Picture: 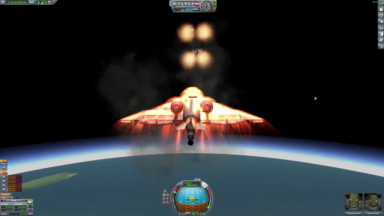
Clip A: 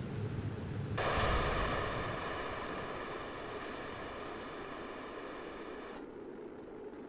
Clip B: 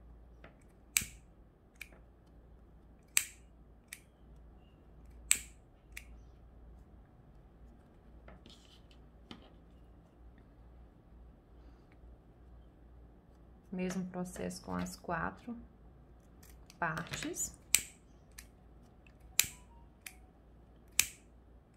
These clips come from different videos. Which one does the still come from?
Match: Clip A